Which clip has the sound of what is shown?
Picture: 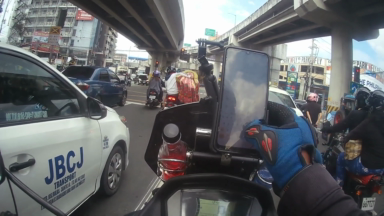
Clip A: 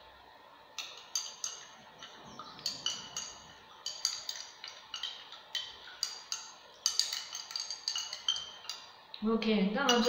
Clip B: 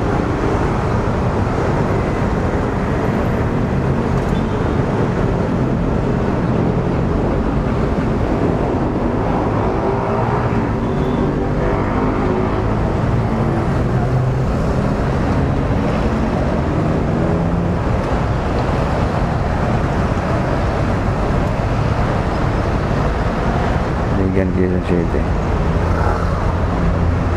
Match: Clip B